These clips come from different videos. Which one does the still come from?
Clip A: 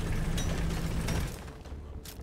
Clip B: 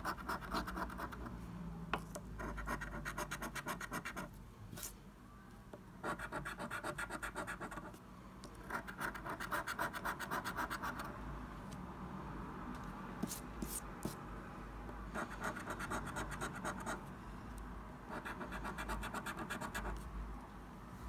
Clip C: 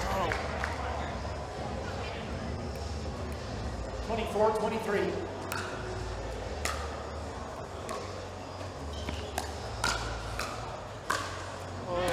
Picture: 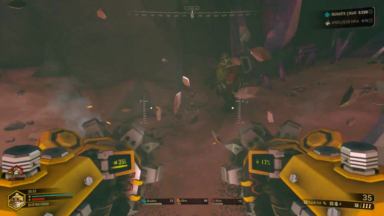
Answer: A